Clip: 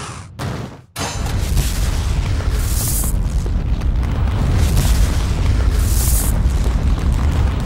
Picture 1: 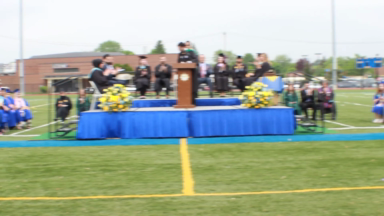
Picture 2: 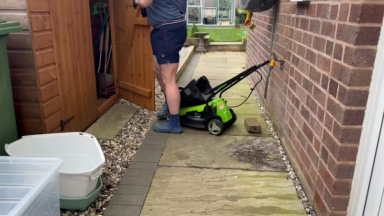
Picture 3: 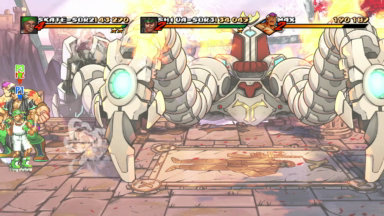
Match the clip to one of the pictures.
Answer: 3